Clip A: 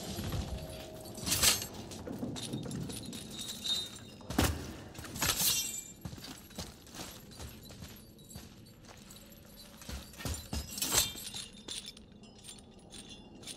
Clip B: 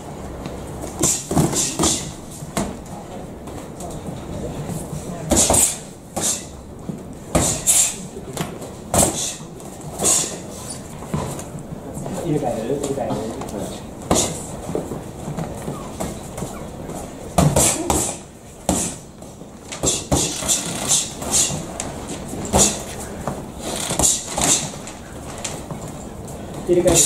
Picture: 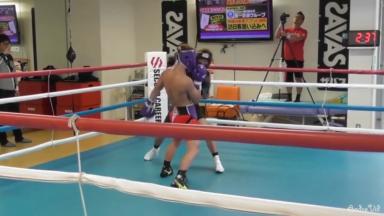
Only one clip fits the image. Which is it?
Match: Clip B